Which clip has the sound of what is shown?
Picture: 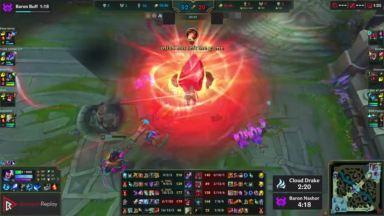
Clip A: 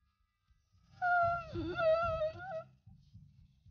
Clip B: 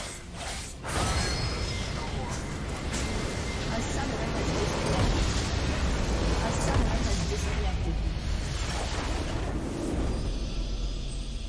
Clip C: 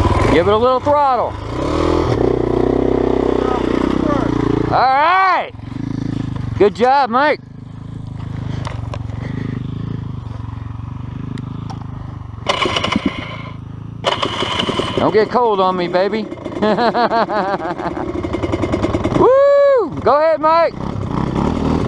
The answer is B